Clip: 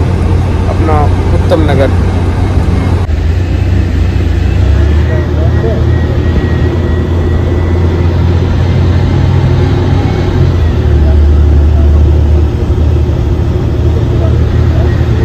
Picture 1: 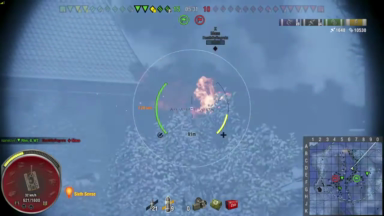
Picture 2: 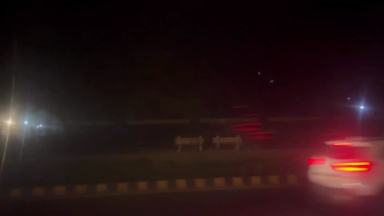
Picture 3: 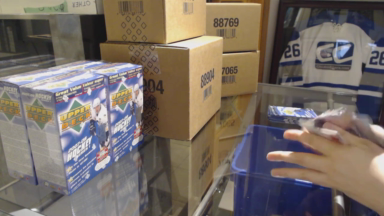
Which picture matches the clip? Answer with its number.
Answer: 2